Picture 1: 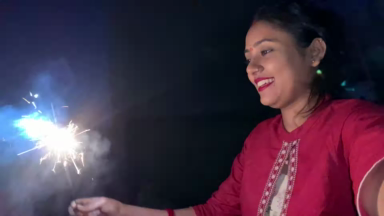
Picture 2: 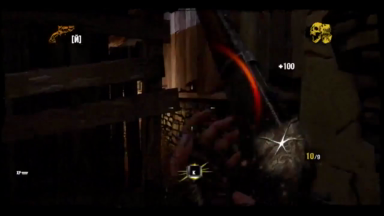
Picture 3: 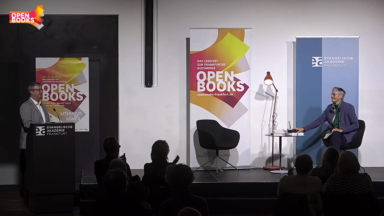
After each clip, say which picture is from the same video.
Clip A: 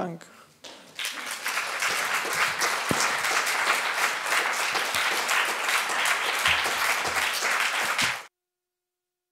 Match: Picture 3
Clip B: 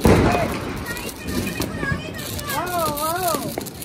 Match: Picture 1